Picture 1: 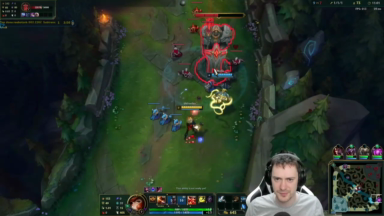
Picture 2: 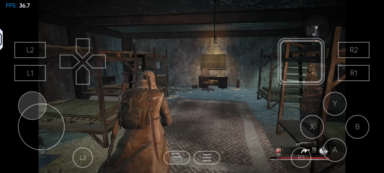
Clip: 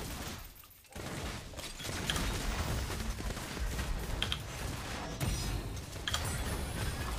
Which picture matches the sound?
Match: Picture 1